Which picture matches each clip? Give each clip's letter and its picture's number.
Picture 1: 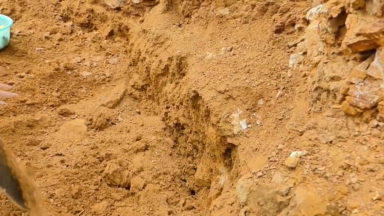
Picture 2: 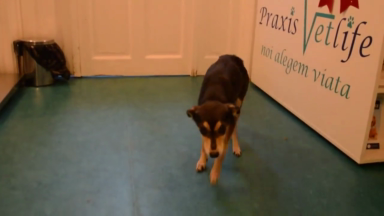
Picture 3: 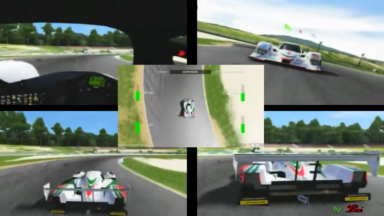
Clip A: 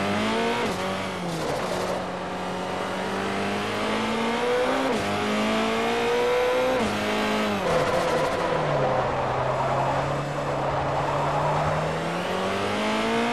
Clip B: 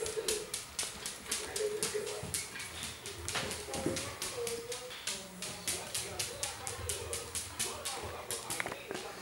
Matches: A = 3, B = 2